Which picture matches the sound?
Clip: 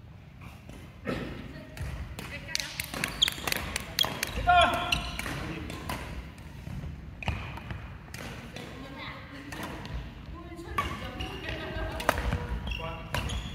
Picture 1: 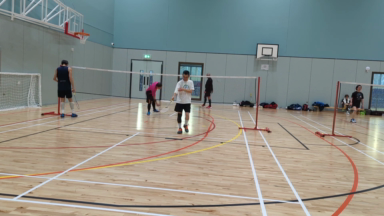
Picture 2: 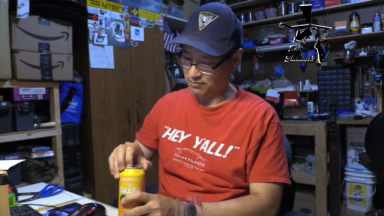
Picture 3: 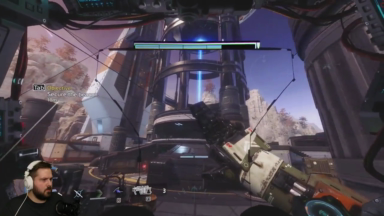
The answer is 1